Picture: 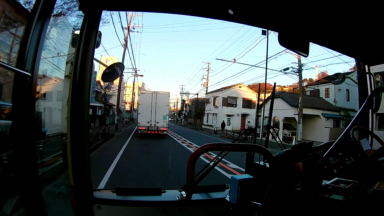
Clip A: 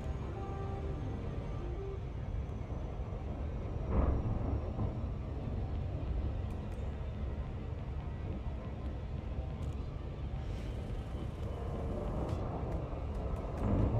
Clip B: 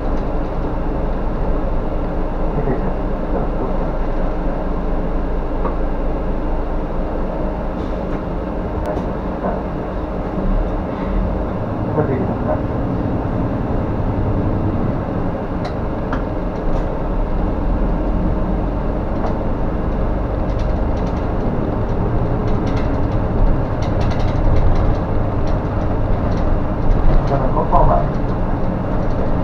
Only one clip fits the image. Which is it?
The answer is B